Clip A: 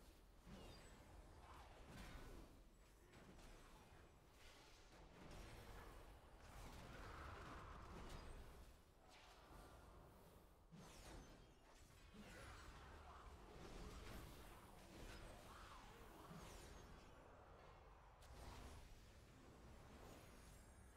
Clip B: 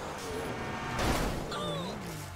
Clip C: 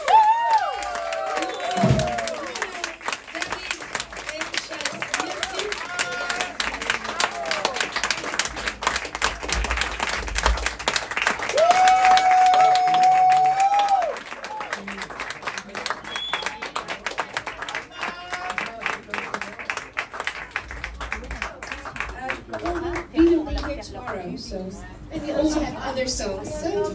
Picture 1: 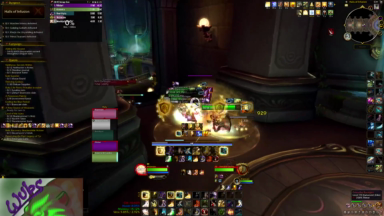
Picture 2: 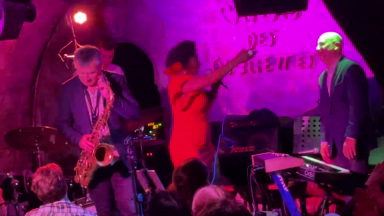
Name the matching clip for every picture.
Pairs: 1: A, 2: C